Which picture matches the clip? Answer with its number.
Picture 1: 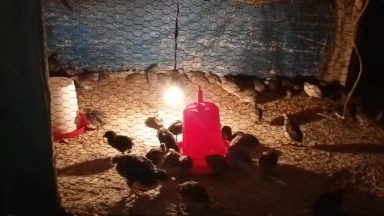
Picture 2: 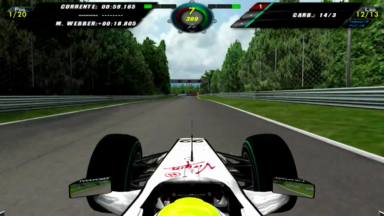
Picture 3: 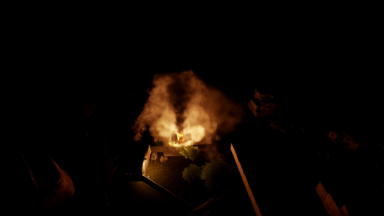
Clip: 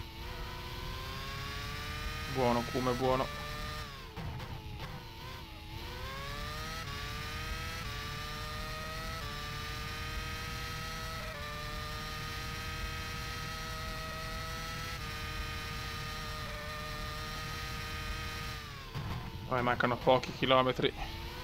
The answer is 2